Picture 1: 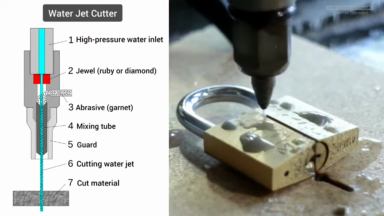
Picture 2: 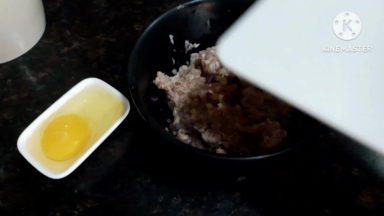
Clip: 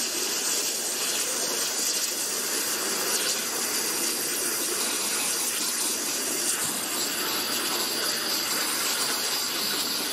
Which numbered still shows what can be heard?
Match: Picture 1